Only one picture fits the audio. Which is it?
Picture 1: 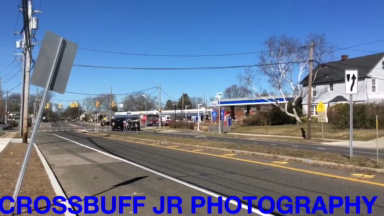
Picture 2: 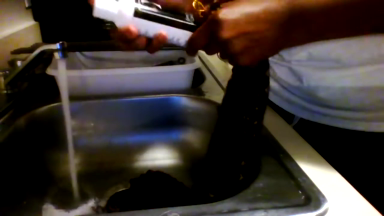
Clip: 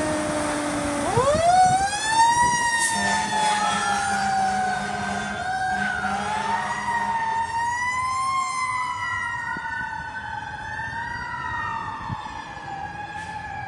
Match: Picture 1